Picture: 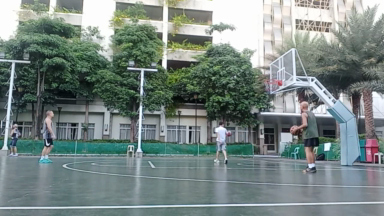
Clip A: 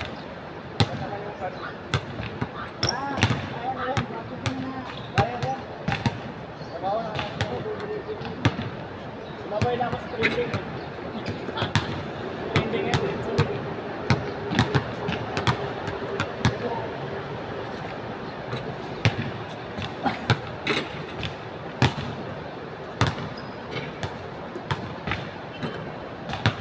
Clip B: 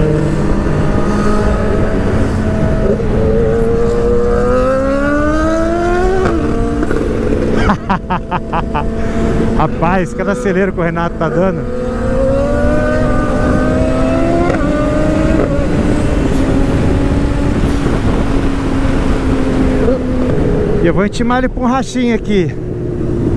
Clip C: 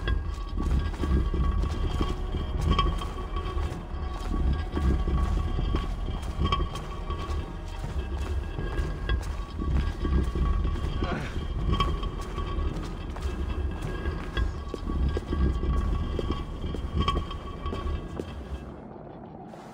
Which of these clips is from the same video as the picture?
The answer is A